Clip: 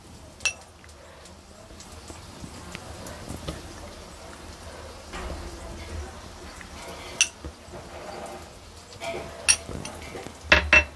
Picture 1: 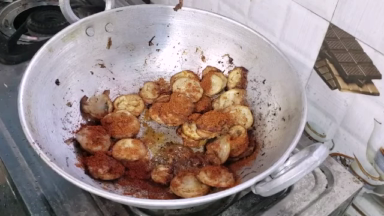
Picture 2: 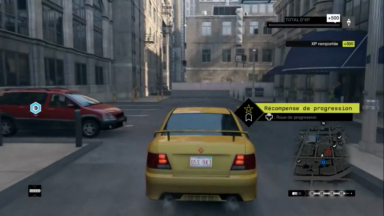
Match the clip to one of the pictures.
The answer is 1